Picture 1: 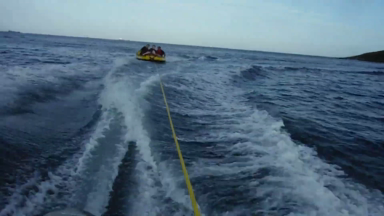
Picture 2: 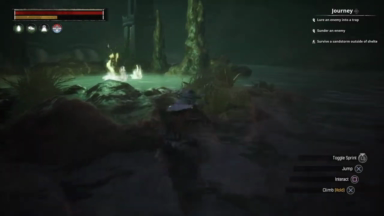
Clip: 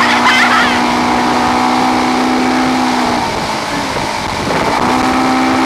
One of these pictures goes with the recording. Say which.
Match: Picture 1